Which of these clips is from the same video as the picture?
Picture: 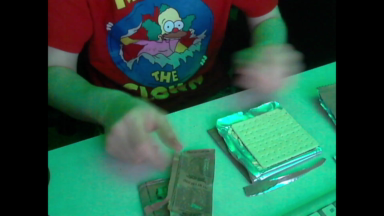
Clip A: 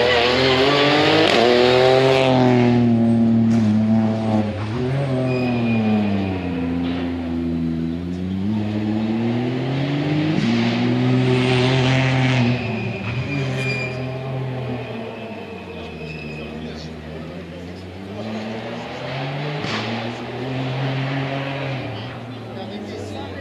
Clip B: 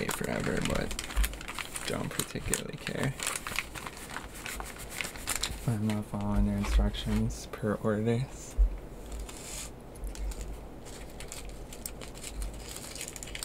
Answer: B